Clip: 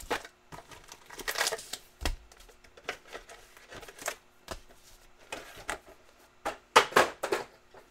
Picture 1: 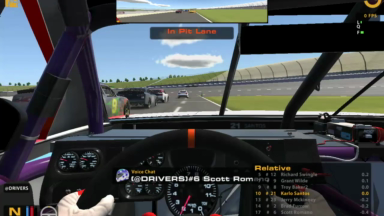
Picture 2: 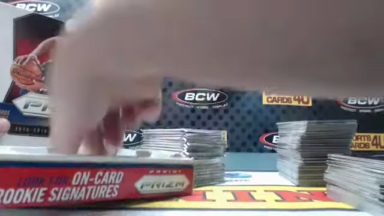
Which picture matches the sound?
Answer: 2